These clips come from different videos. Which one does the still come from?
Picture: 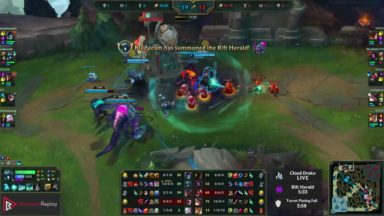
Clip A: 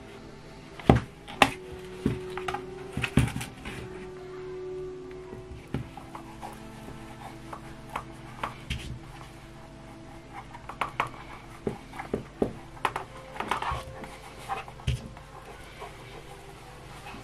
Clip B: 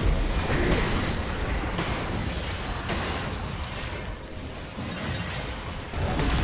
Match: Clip B